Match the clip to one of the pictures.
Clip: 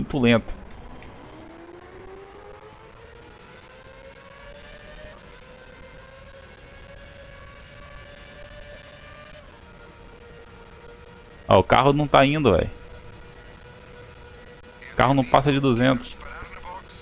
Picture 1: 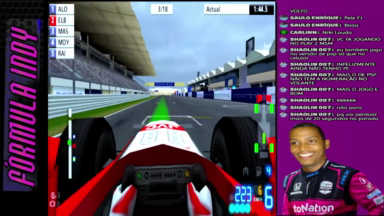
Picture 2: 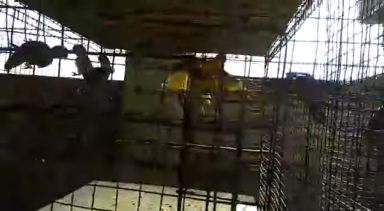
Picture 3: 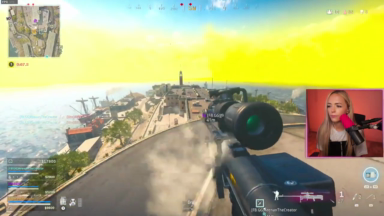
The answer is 1